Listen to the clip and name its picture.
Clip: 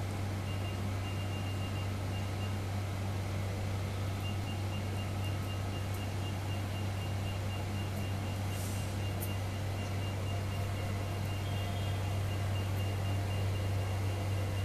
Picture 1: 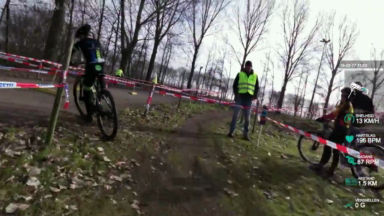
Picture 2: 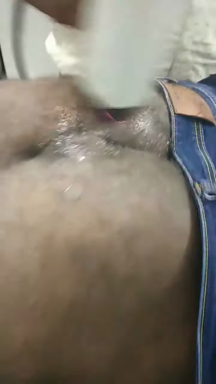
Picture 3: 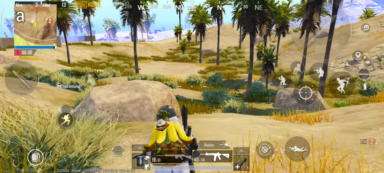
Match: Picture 2